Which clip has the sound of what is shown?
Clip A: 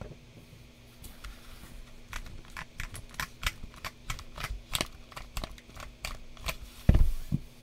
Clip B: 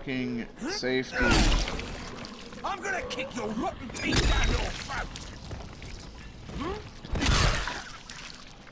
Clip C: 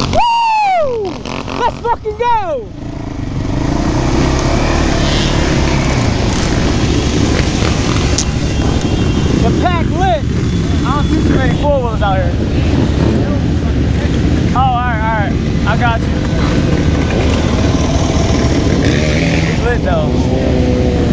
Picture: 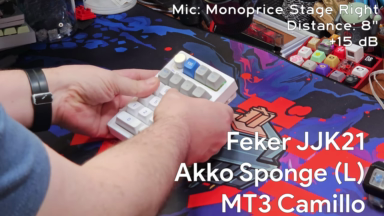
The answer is A